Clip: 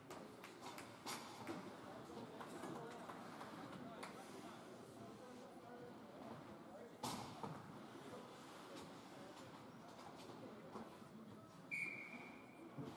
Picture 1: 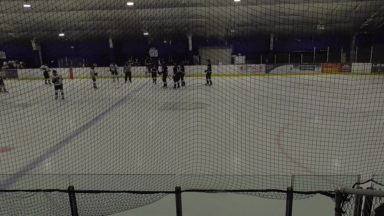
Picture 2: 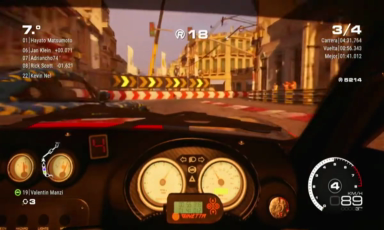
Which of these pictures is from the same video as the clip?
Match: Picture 1